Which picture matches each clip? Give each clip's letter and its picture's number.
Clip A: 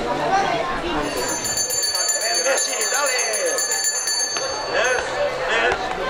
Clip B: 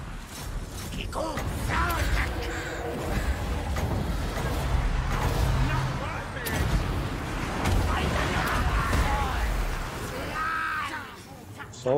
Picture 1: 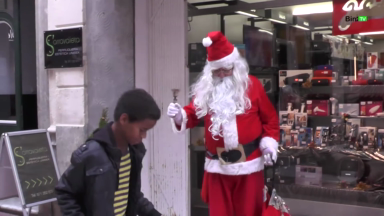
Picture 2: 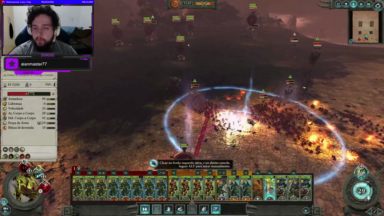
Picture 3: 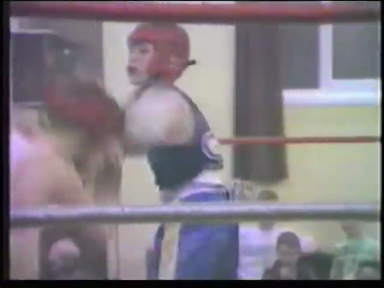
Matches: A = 1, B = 2